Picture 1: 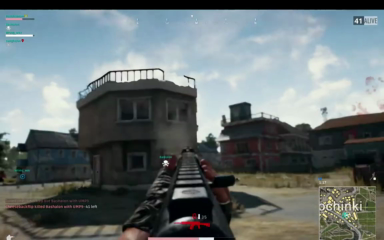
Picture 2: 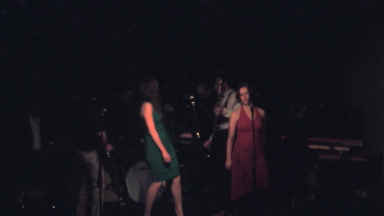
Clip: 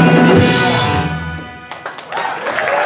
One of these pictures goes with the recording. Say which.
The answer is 2